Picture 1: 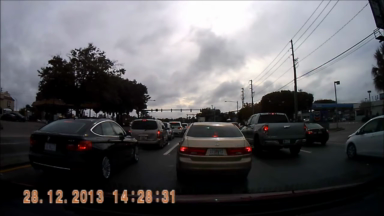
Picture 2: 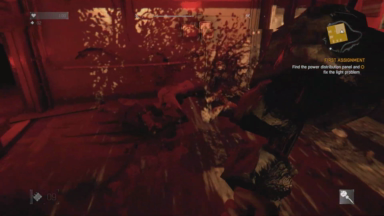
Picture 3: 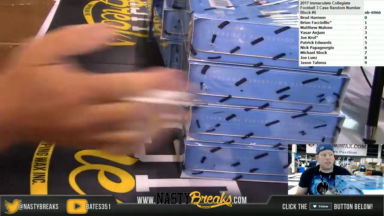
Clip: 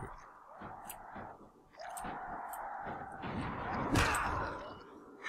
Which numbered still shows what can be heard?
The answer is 2